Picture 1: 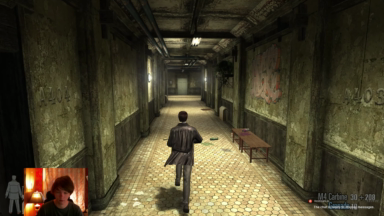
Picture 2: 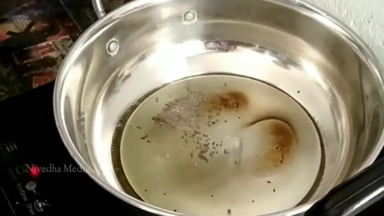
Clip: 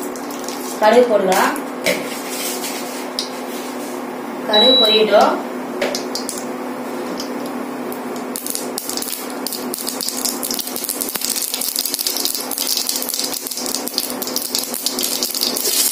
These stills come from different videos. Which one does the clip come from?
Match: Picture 2